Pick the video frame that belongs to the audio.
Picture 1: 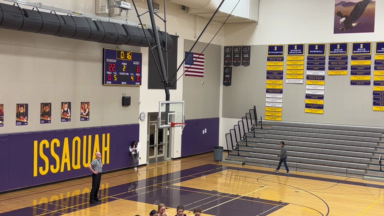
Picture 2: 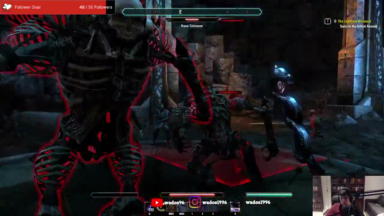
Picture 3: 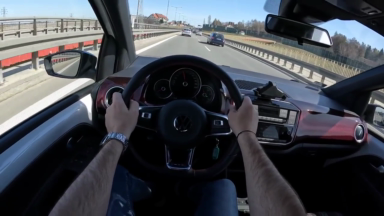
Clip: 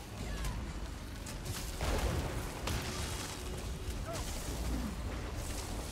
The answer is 2